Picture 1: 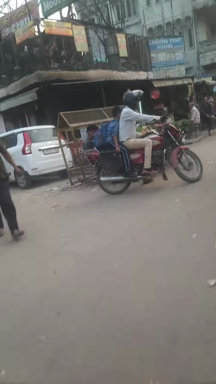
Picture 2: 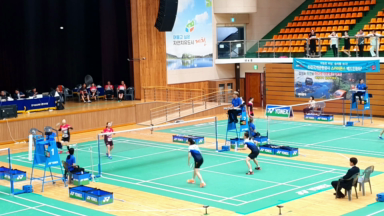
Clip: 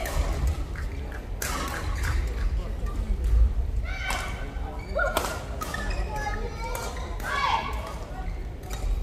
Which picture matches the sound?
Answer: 2